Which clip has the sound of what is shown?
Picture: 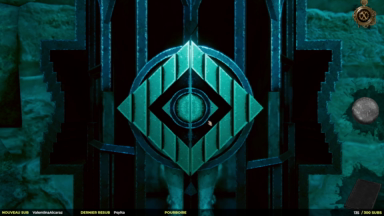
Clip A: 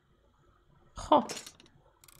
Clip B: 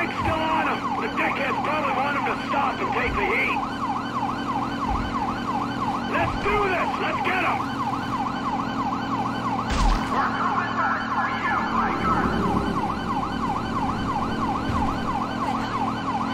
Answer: A